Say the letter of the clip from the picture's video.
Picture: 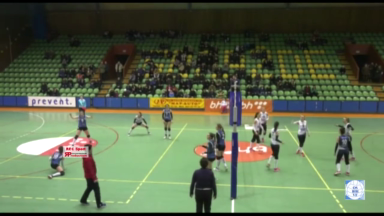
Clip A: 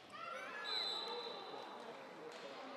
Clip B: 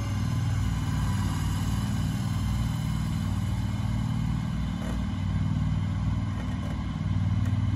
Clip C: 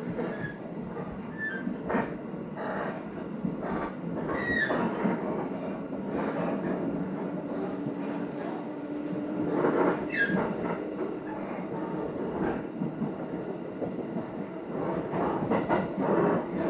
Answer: A